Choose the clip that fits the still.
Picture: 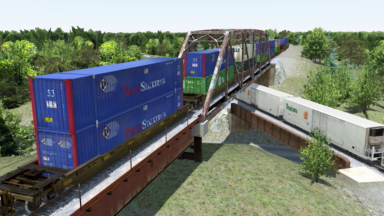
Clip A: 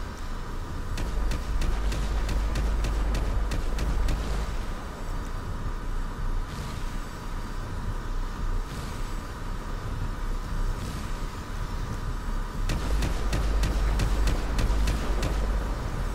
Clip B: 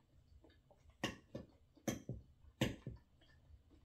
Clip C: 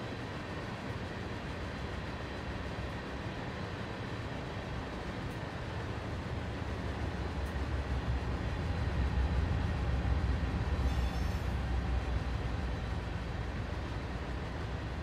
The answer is C